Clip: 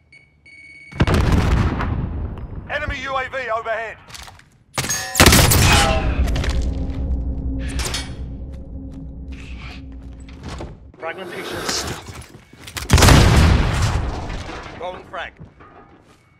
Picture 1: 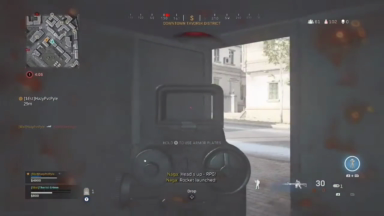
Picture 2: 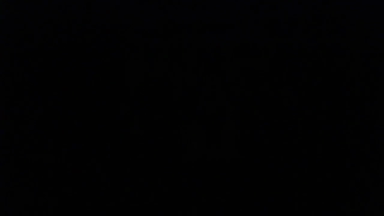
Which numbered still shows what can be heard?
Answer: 1